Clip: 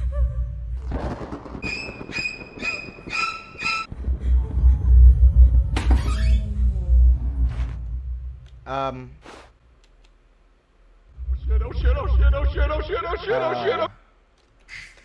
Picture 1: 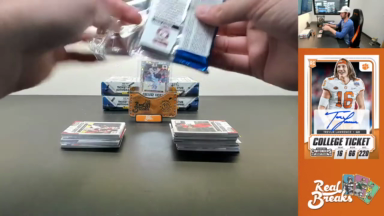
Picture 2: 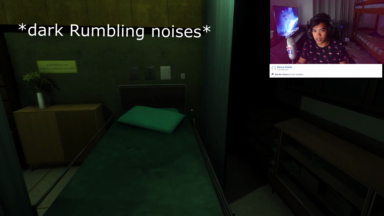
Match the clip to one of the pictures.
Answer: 2